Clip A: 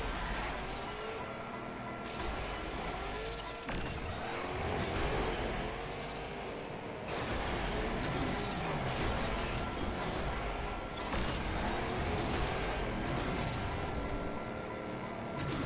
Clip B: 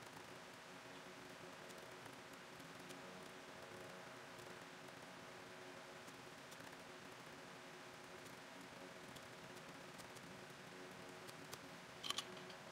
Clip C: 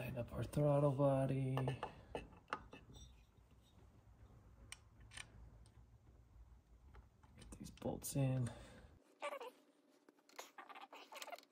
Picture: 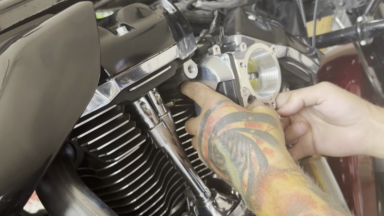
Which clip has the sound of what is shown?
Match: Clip C